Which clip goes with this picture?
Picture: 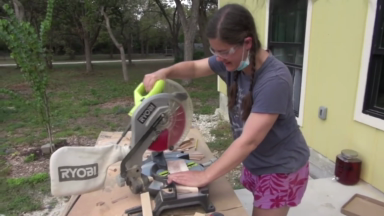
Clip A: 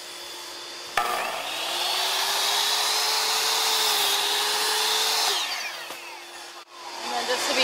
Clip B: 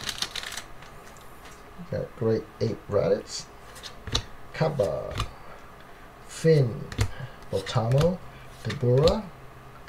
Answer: A